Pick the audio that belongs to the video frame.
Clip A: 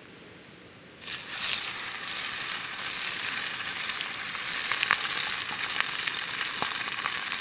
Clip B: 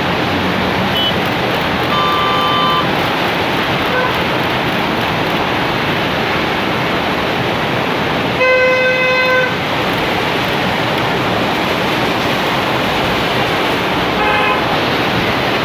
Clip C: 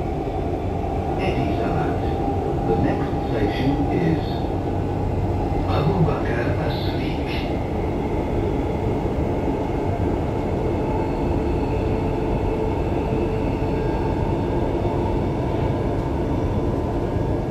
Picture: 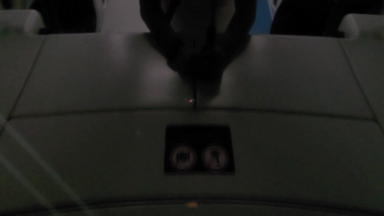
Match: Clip C